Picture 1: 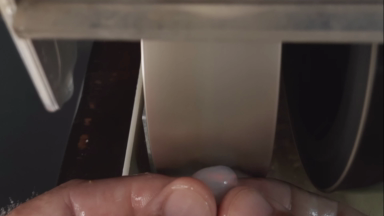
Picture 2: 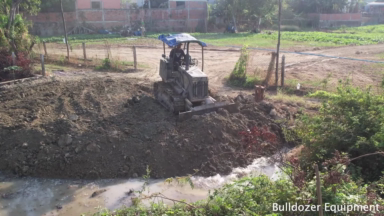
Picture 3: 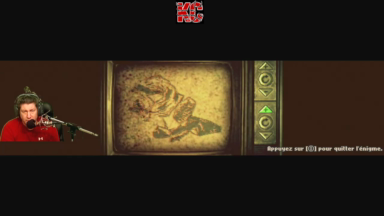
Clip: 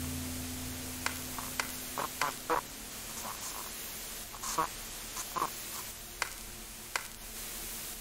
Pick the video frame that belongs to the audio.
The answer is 3